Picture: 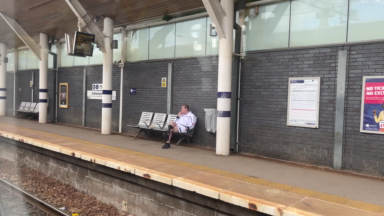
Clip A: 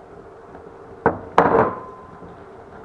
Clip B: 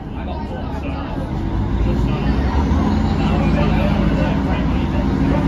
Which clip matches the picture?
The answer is B